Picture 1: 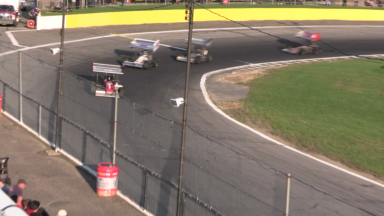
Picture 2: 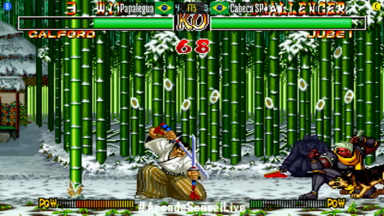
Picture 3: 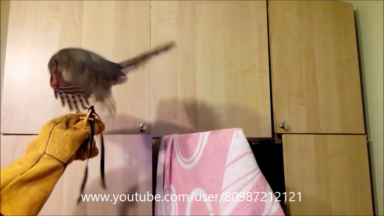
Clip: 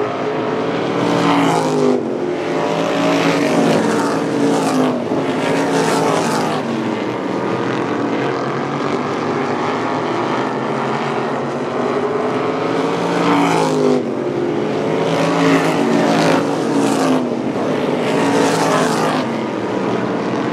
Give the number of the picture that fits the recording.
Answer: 1